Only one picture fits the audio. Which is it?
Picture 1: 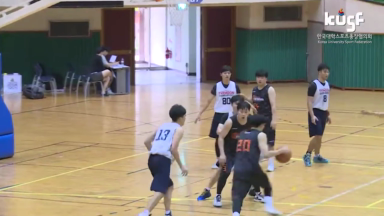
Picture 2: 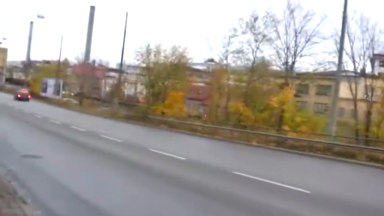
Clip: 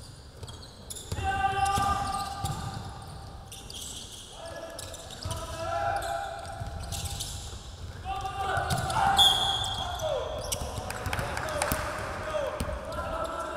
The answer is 1